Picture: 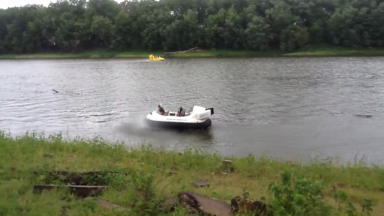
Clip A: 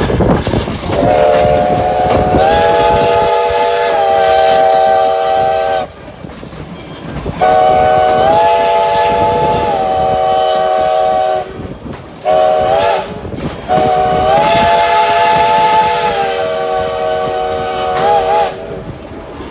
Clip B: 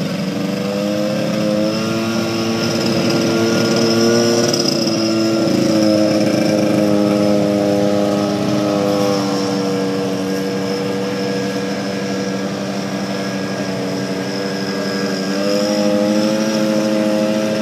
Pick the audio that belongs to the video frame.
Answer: B